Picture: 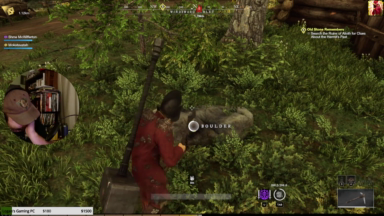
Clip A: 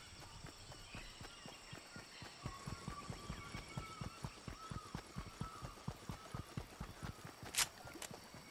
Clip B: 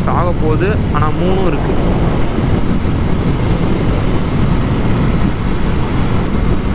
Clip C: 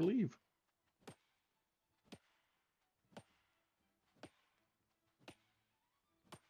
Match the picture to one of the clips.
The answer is C